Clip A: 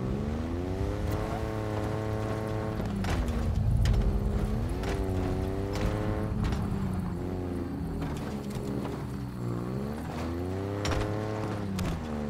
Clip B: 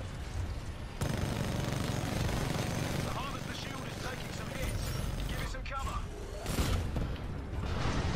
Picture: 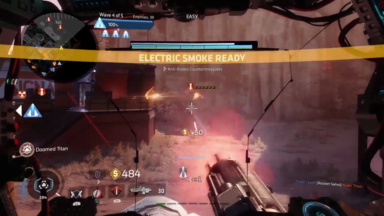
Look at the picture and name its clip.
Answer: B